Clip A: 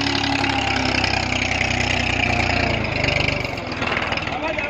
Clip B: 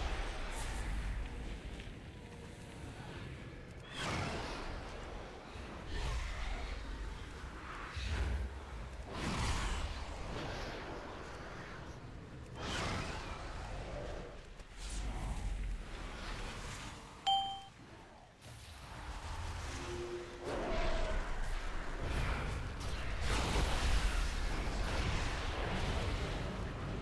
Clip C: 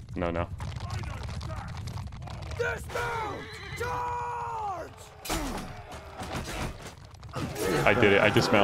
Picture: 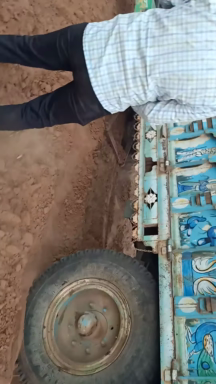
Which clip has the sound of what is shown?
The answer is A